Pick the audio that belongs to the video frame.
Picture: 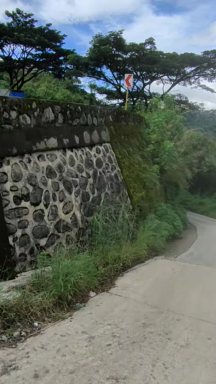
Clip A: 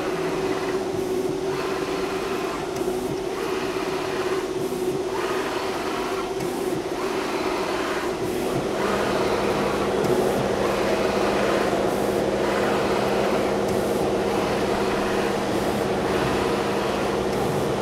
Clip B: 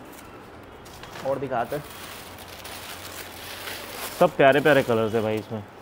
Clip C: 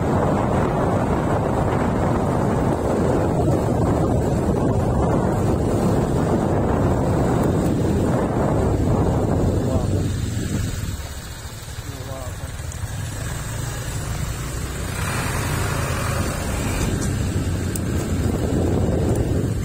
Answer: C